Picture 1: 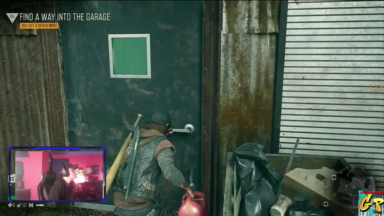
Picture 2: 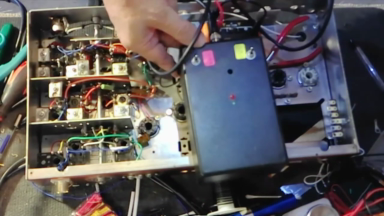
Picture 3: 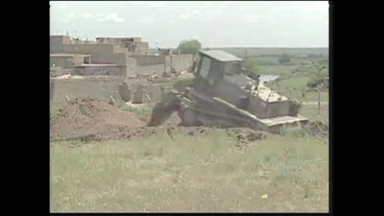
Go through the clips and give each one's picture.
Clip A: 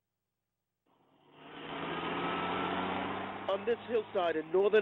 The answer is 3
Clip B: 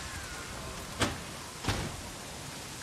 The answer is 1